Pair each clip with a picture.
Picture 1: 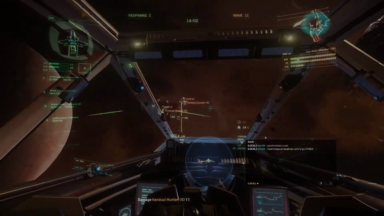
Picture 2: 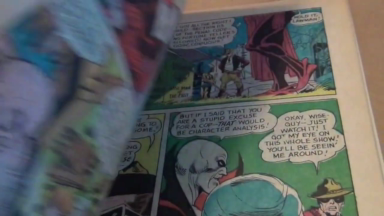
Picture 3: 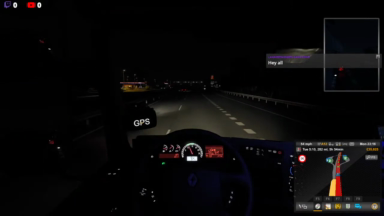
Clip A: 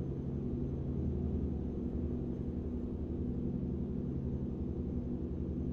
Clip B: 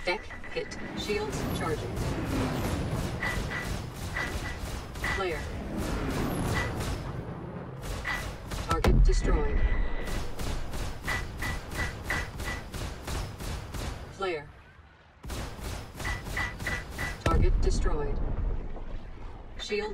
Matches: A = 3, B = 1